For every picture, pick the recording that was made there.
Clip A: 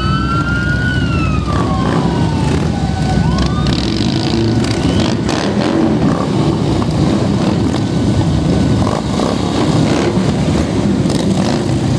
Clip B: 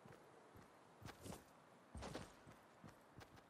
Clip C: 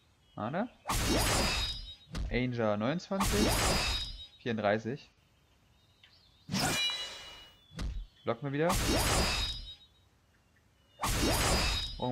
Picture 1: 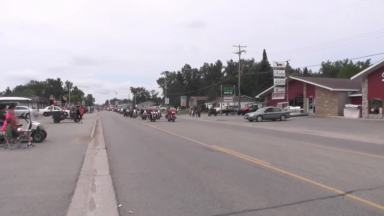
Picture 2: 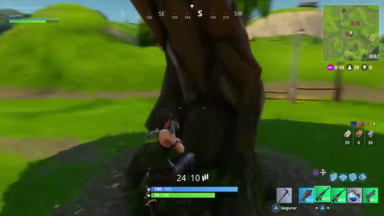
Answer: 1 A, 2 B